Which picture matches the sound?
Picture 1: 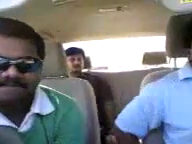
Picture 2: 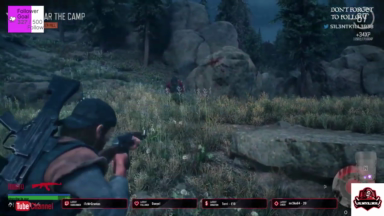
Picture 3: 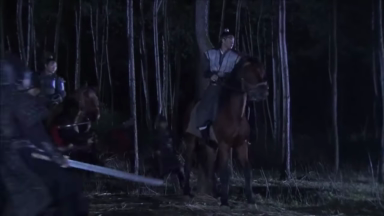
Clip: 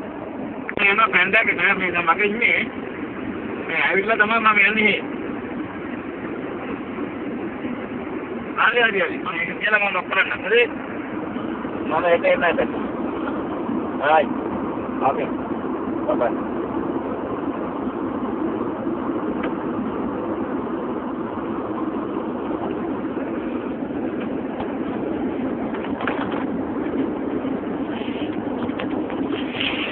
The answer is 1